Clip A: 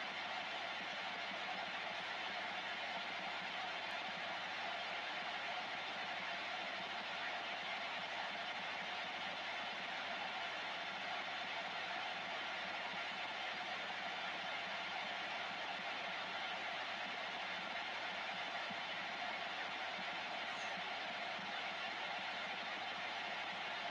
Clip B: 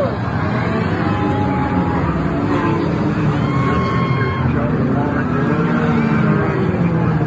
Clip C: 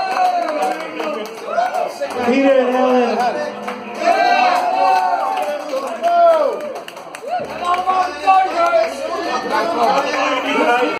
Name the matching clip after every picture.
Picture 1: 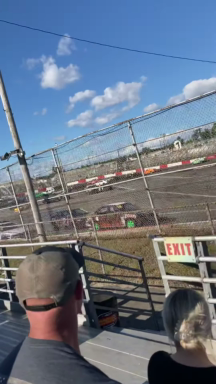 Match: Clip B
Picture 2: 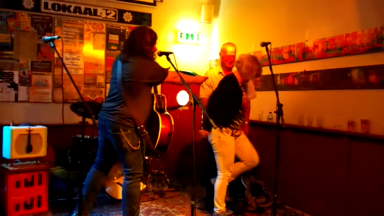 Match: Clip C